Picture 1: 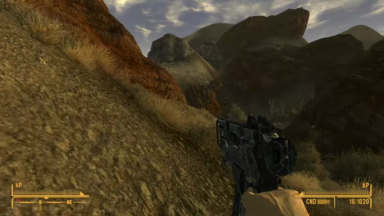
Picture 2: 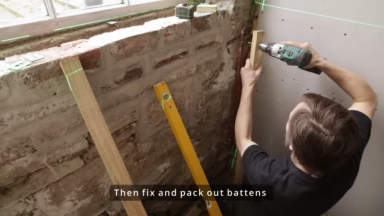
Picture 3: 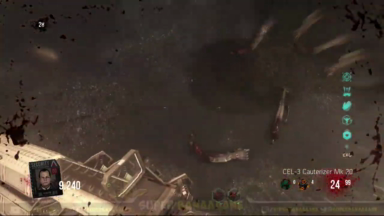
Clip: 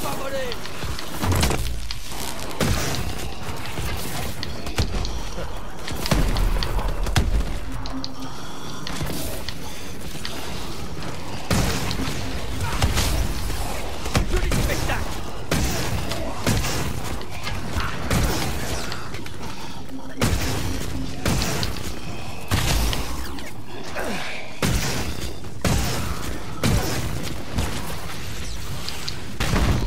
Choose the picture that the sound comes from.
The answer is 3